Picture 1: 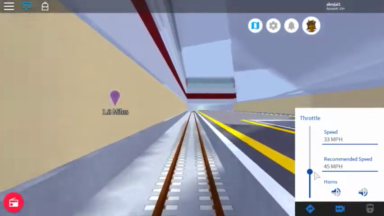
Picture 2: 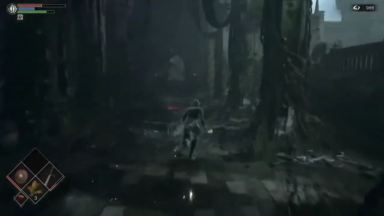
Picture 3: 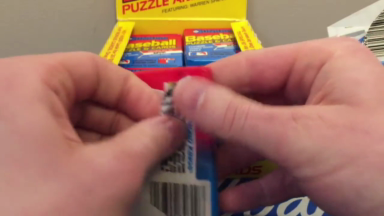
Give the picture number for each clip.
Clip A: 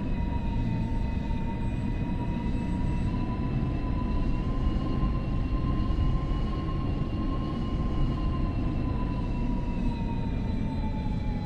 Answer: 1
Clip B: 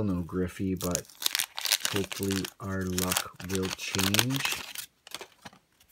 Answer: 3